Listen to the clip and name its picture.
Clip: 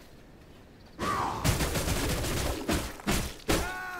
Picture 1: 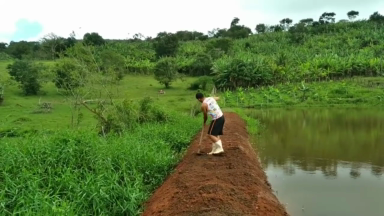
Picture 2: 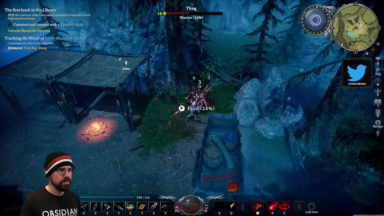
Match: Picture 2